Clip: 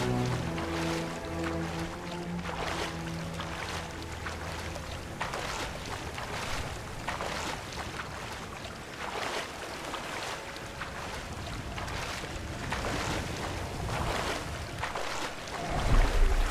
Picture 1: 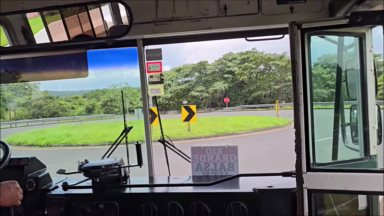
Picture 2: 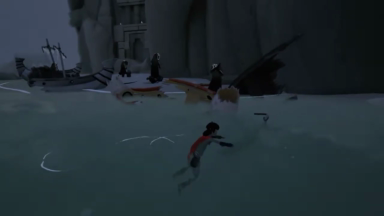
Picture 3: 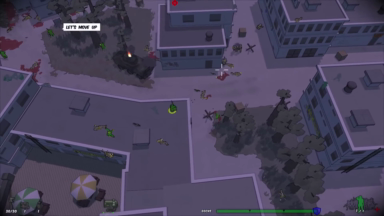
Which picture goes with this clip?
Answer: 2